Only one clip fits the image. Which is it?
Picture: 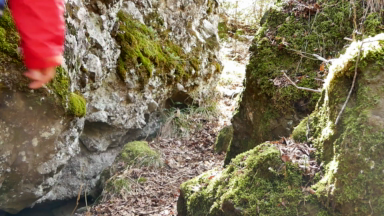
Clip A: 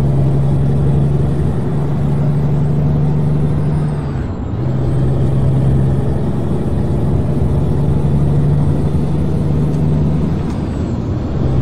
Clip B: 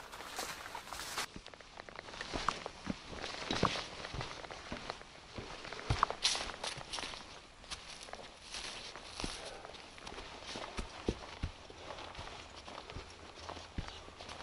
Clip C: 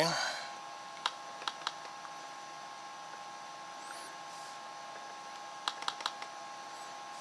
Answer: B